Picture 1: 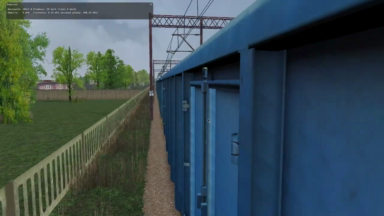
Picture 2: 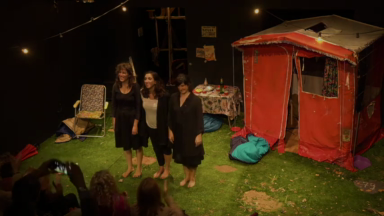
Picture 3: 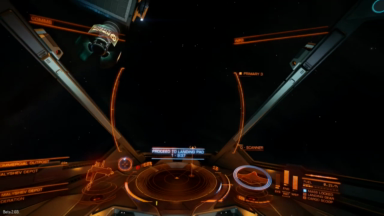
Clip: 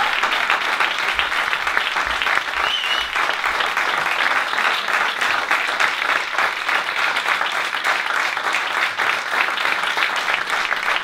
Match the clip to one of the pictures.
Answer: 2